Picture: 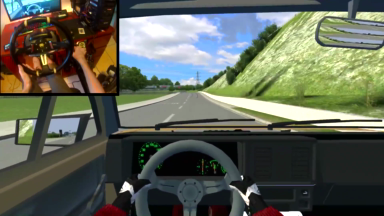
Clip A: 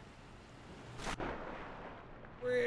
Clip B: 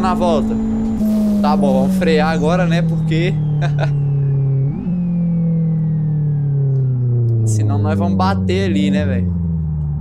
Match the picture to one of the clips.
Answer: B